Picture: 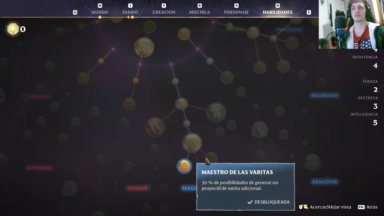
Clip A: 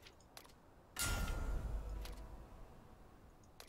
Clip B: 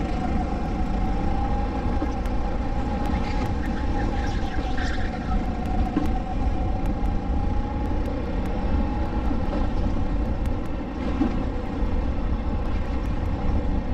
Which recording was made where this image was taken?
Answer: A